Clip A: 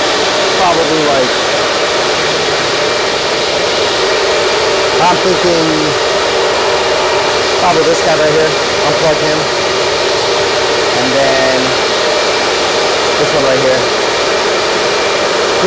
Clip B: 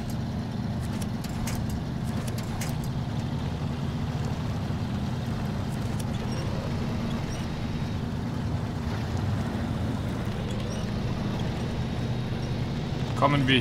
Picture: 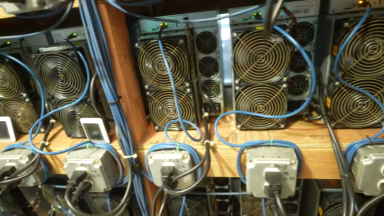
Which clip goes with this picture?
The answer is A